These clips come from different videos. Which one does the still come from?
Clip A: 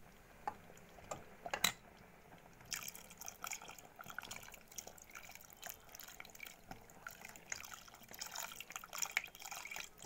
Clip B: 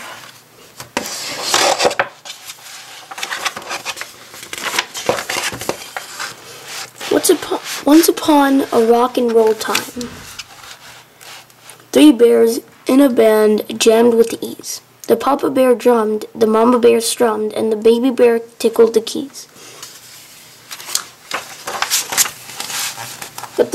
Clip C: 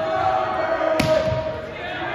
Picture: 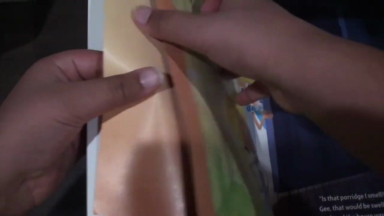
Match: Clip B